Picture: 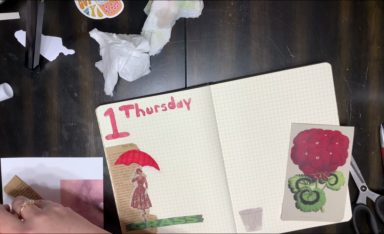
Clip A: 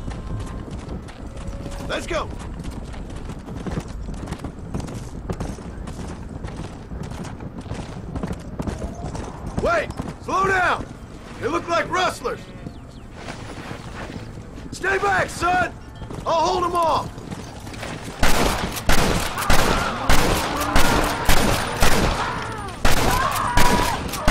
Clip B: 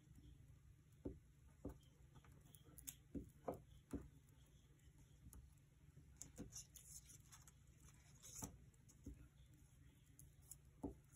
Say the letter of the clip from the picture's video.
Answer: B